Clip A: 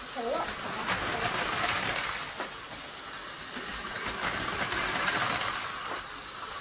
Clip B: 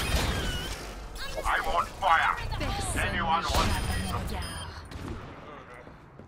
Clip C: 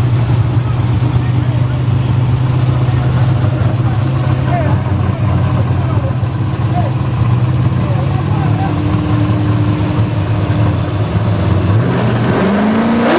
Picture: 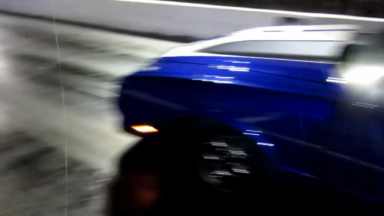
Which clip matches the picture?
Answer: C